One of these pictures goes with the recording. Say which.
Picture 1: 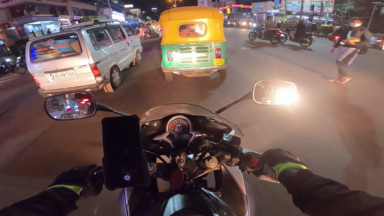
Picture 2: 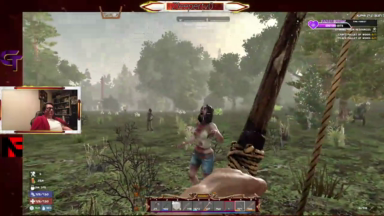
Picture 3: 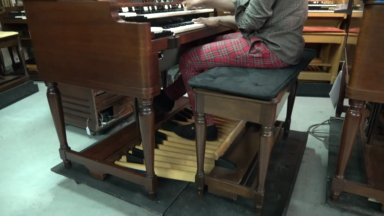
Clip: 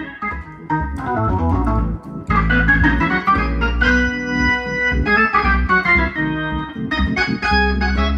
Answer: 3